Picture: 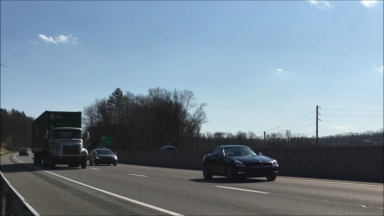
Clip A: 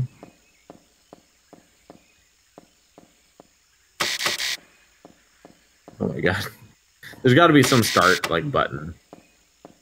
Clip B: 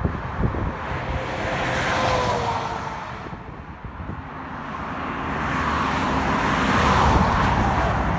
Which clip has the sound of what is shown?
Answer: B